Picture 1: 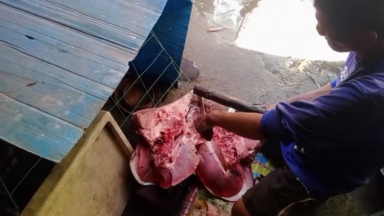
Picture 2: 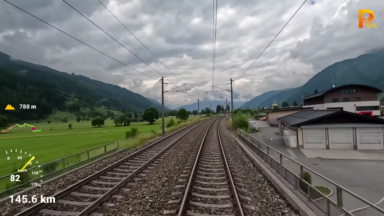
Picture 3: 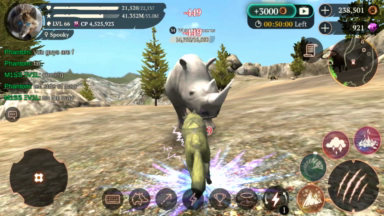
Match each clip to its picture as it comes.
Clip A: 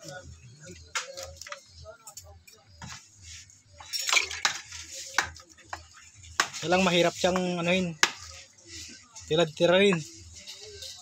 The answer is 1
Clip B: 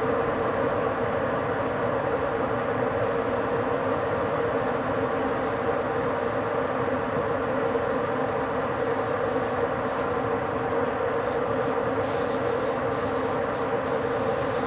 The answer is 2